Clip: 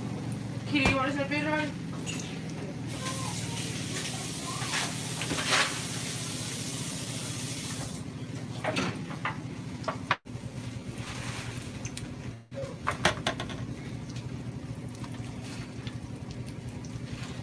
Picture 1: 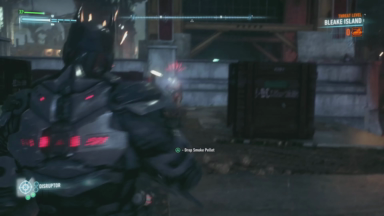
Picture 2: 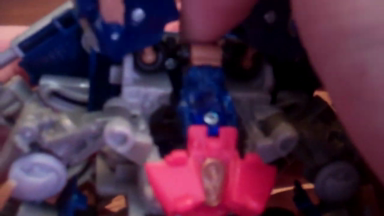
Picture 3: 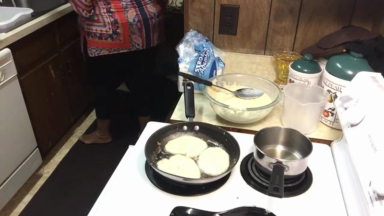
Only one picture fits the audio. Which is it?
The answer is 3